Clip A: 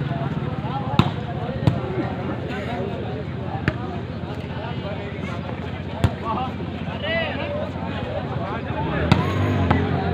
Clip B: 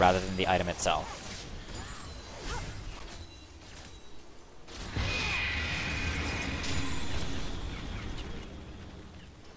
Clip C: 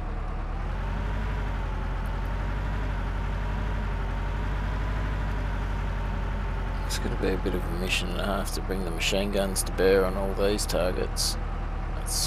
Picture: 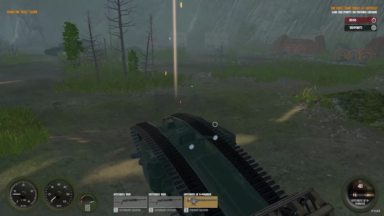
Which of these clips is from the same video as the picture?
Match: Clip C